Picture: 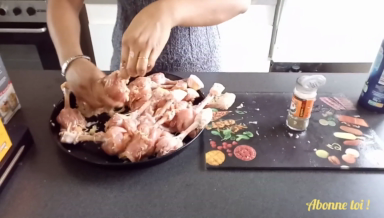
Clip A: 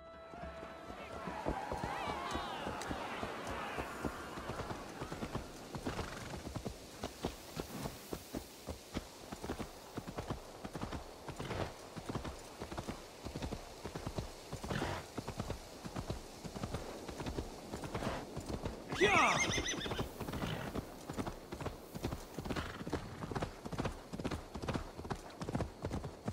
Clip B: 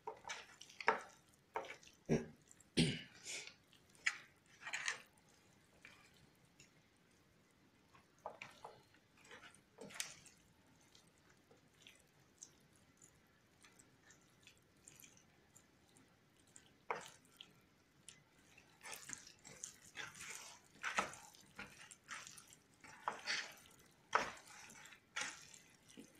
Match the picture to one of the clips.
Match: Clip B